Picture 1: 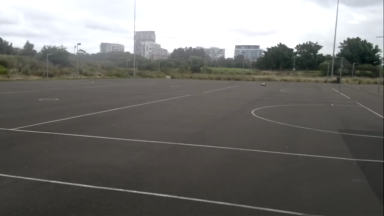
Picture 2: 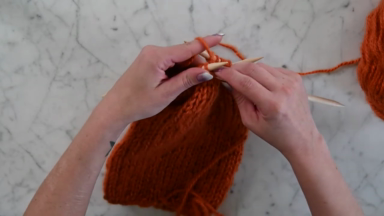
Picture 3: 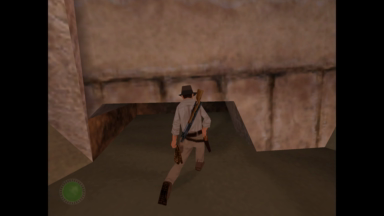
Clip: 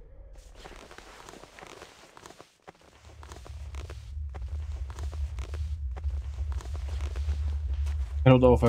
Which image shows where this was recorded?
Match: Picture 3